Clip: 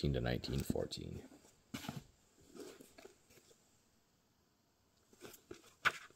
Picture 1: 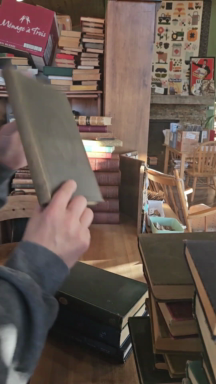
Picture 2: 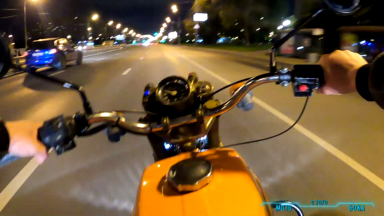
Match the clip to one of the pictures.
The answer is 1